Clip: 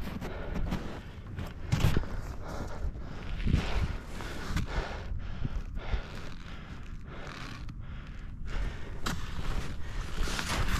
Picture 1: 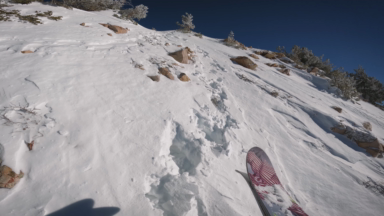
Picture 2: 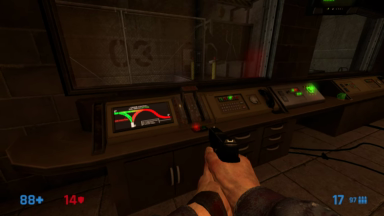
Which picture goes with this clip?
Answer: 1